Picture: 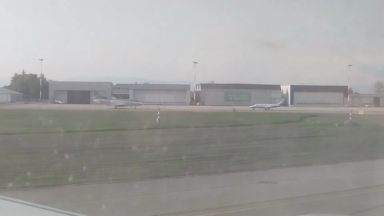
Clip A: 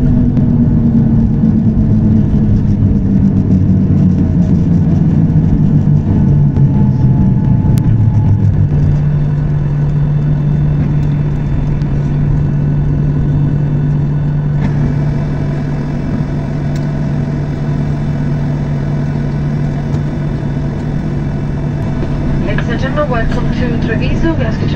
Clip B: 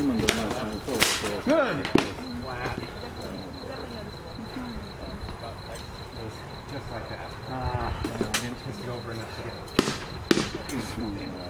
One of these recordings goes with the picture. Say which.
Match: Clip A